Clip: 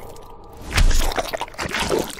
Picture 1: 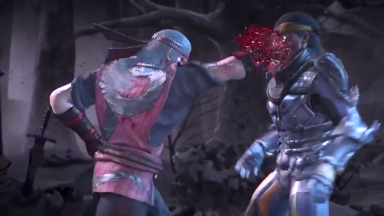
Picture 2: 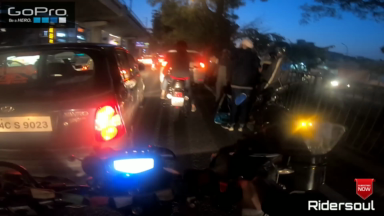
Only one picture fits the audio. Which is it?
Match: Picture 1